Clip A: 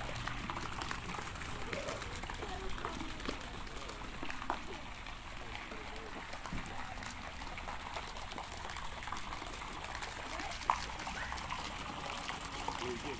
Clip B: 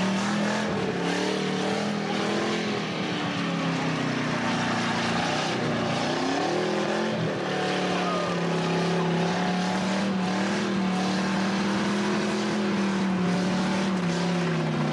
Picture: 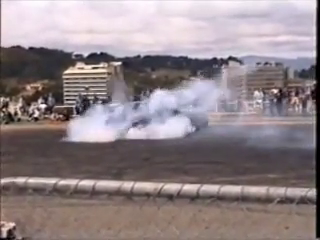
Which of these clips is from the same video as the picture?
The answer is B